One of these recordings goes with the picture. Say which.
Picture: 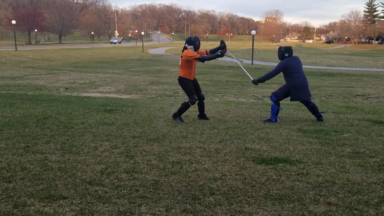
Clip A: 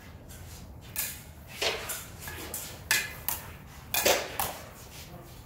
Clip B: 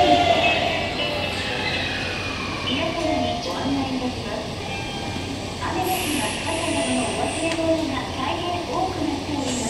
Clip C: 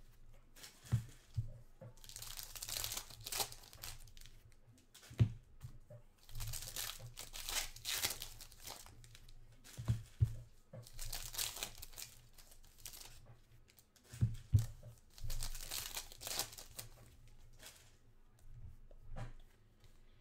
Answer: A